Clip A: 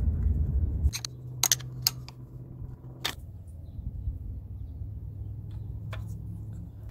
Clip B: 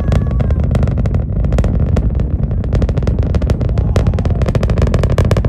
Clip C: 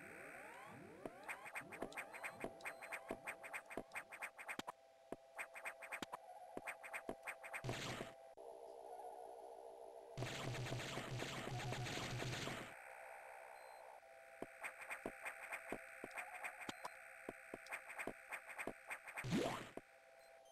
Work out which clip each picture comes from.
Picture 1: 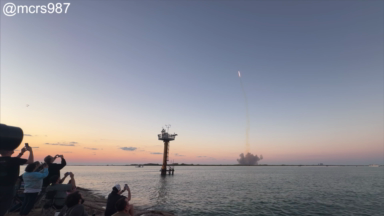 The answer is B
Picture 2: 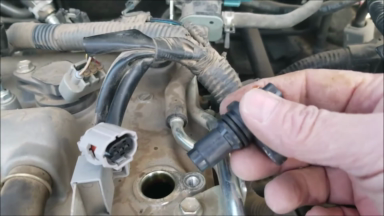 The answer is A